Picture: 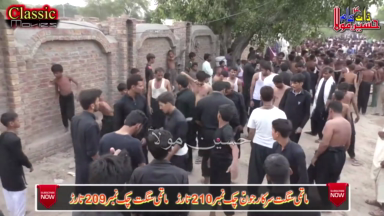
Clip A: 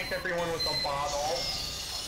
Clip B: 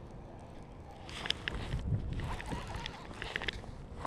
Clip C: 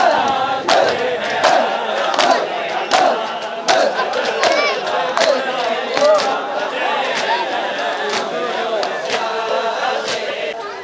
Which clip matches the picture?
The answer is C